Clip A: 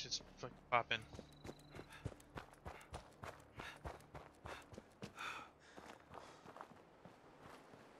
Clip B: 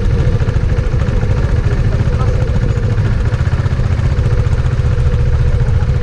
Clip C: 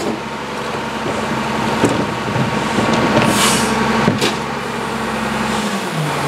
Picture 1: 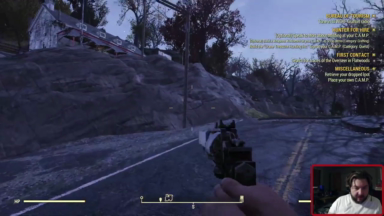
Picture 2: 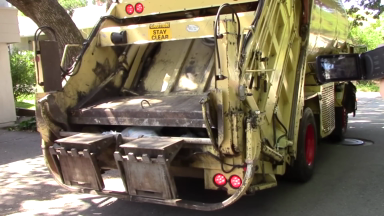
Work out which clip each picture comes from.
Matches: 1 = A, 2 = C